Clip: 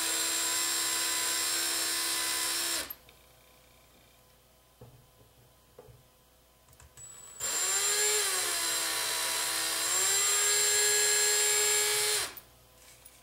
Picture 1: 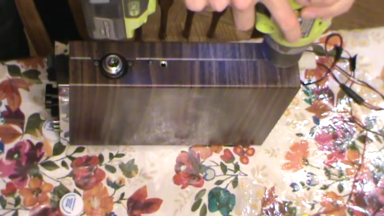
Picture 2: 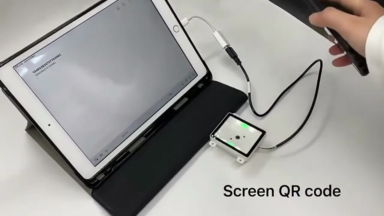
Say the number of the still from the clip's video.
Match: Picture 1